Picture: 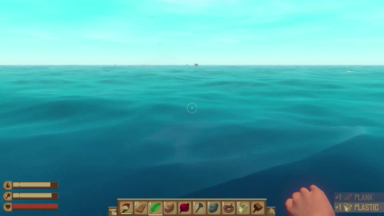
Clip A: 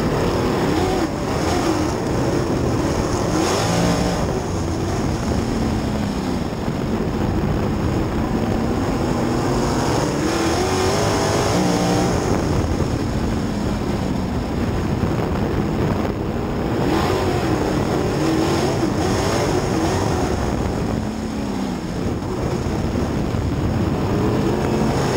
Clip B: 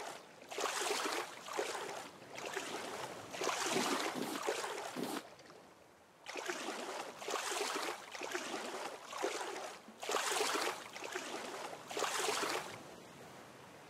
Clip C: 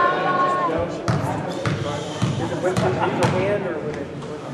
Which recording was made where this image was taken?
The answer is B